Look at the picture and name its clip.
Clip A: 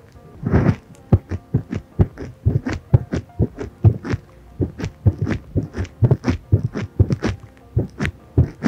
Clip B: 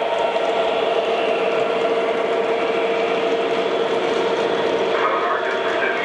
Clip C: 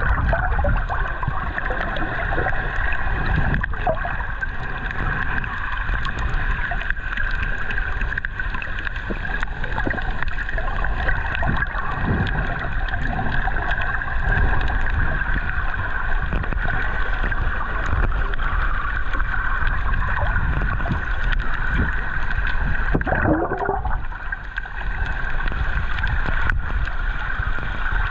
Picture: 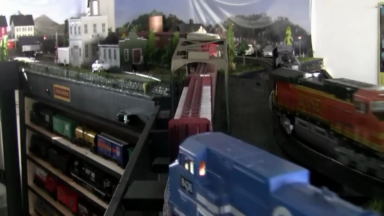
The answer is B